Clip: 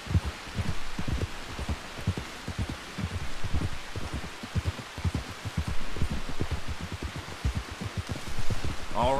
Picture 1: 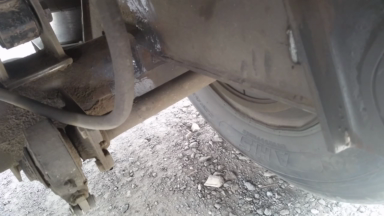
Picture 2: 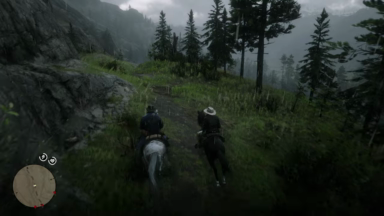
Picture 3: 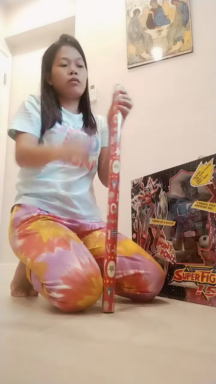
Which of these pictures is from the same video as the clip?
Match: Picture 2